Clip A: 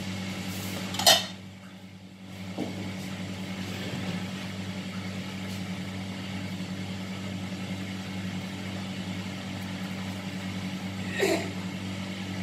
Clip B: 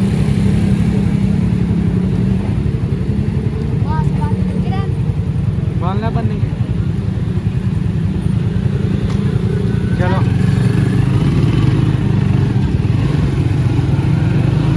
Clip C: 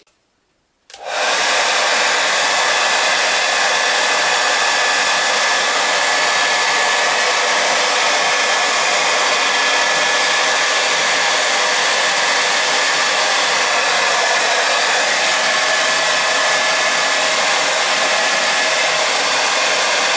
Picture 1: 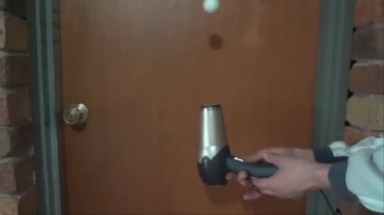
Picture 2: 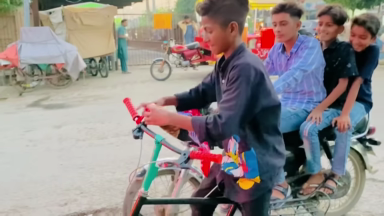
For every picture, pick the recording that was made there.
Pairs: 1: C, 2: B